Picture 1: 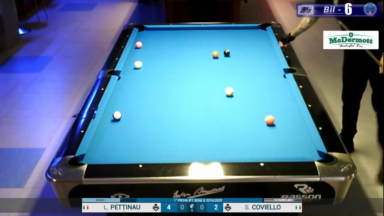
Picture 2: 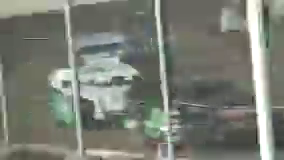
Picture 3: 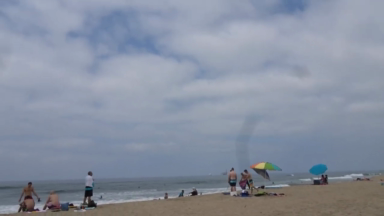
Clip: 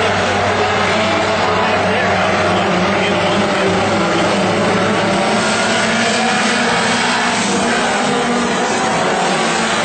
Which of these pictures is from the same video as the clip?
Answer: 2